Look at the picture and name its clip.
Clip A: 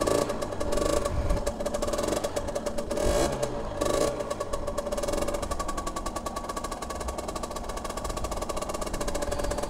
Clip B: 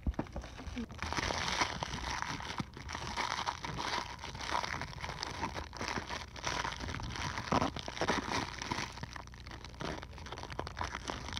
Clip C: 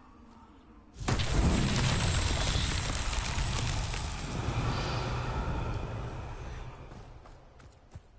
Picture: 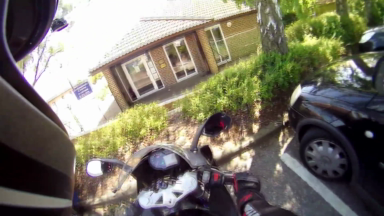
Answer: A